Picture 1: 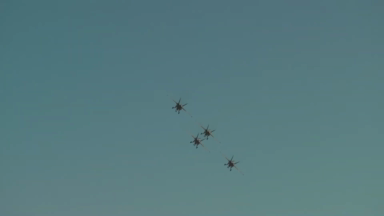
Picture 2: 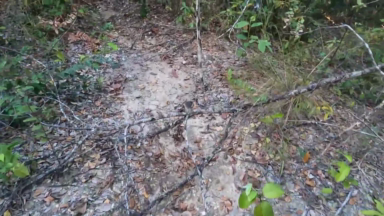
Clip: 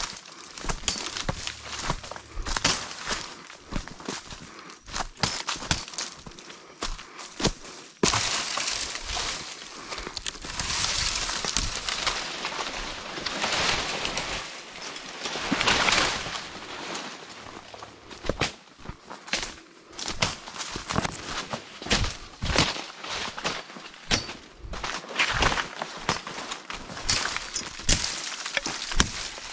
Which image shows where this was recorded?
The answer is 2